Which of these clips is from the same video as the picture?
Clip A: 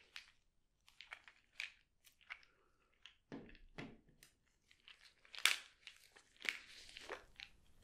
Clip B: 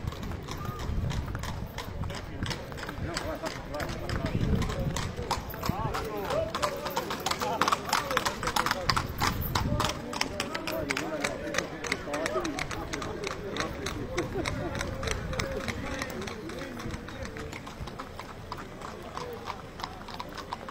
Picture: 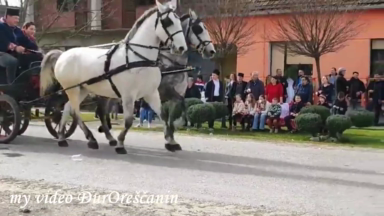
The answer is B